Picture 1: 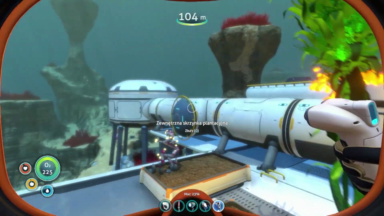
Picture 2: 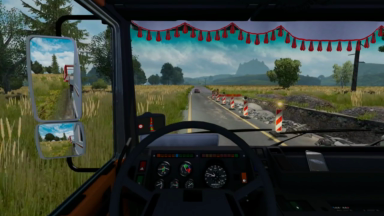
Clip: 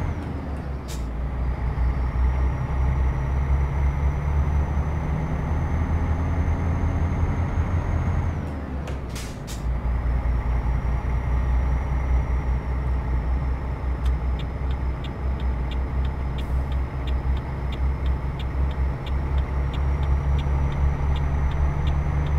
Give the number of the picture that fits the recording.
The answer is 2